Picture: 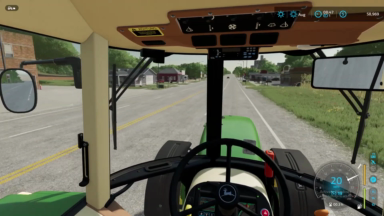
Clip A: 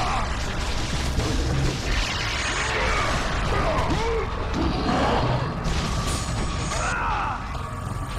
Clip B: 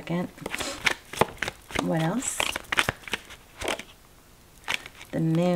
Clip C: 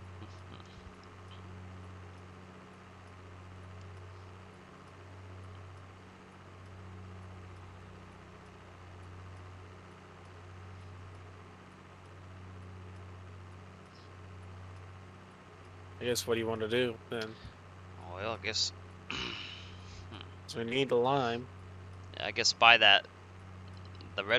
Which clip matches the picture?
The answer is C